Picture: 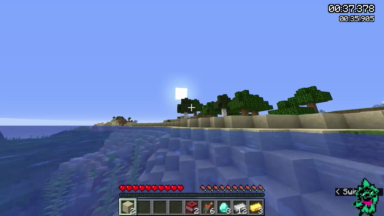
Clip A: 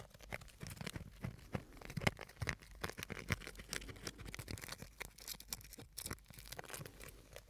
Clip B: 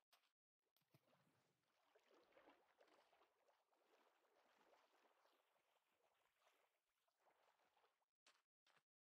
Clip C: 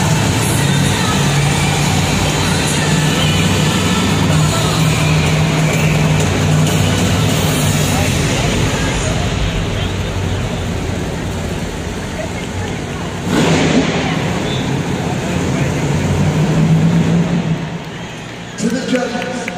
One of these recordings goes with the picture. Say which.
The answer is B